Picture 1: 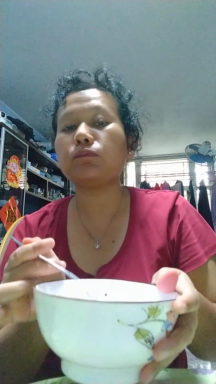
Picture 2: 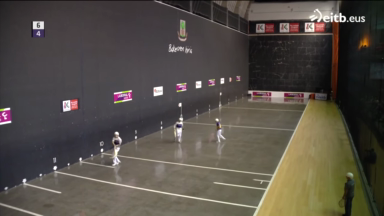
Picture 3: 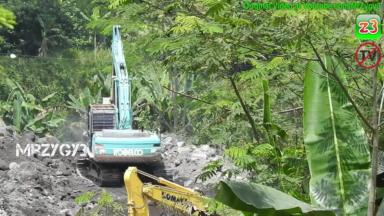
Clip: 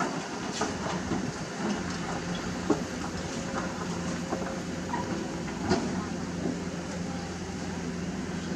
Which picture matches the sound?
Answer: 3